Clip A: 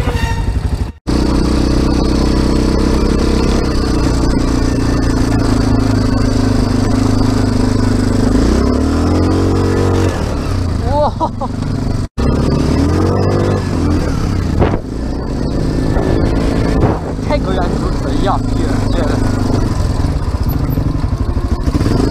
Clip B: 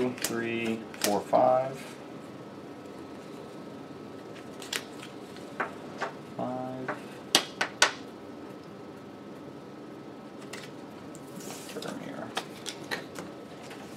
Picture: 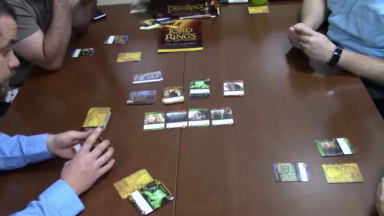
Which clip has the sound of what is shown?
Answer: B